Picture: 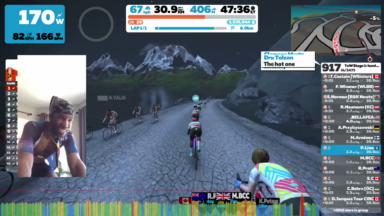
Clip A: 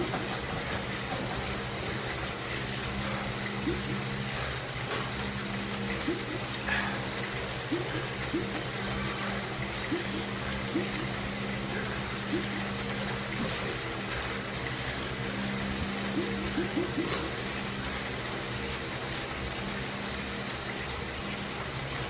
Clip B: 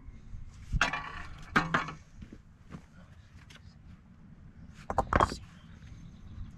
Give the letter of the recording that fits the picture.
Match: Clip A